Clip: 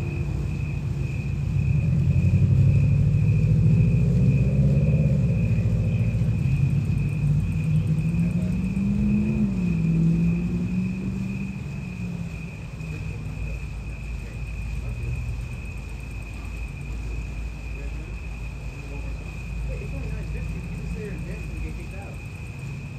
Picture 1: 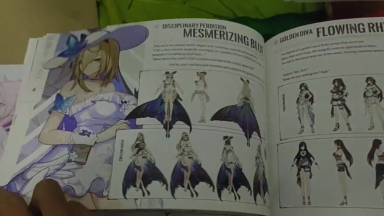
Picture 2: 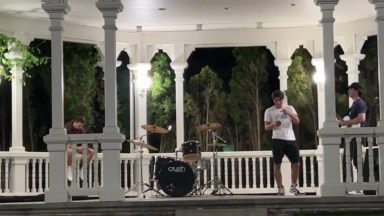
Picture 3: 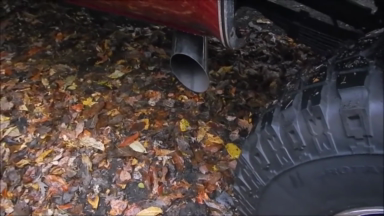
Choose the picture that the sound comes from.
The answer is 2